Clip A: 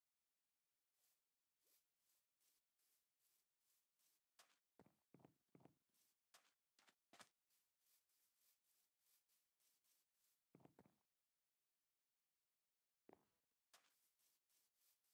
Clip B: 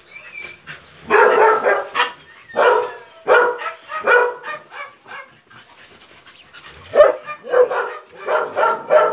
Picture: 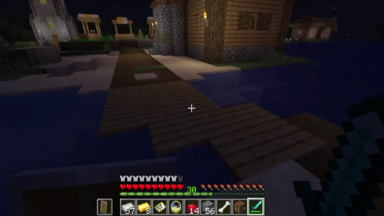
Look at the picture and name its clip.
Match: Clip A